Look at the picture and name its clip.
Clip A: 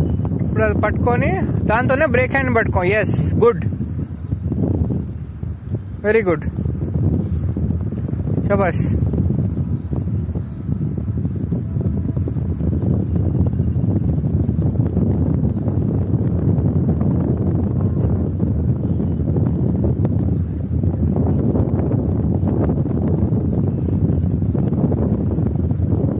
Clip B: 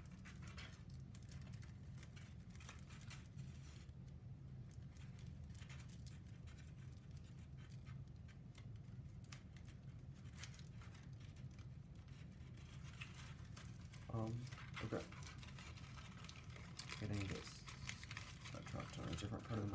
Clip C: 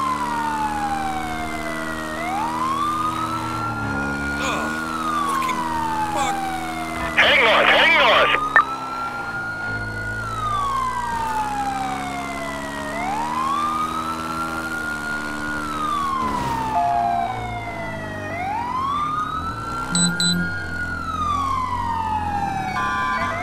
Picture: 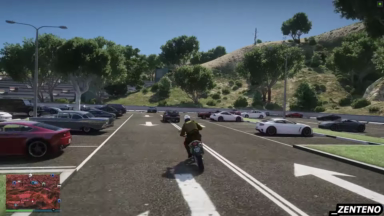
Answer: C